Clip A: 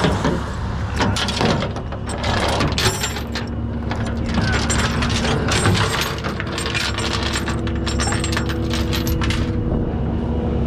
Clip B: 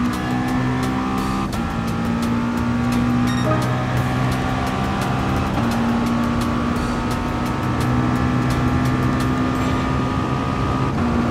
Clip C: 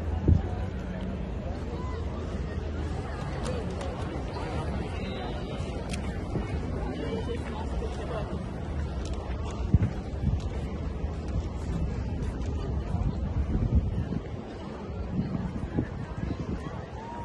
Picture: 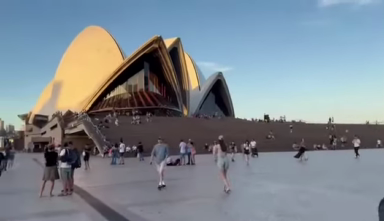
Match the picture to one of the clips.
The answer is C